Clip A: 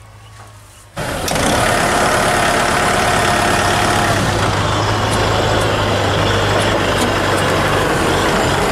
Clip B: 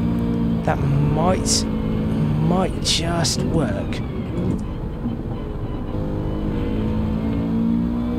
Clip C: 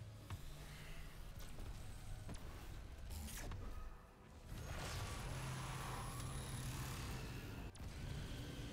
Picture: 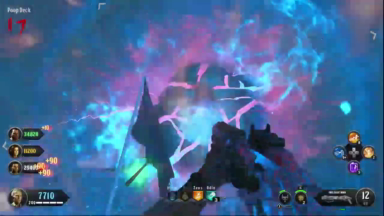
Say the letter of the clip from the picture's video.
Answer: C